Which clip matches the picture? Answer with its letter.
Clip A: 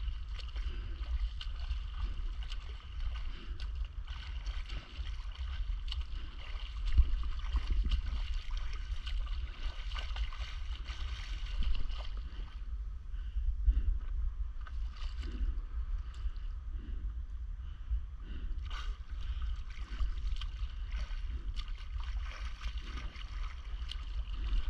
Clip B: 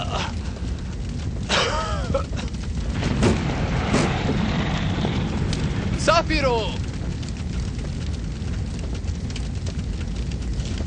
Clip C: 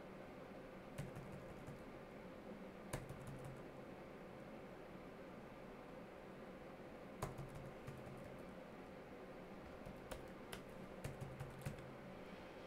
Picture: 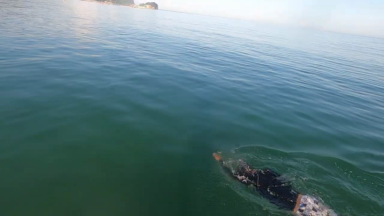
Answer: A